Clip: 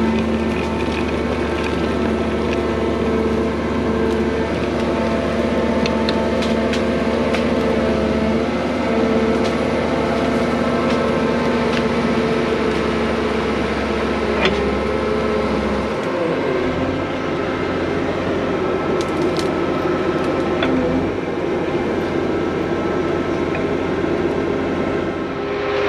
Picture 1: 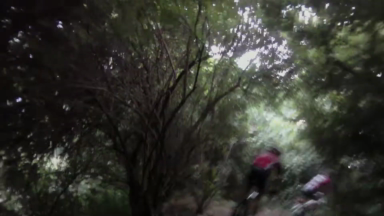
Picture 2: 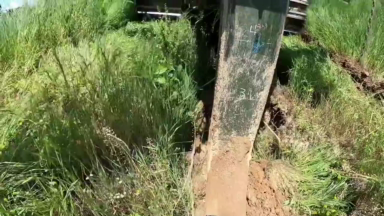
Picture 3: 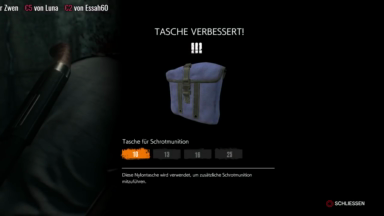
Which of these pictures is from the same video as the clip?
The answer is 2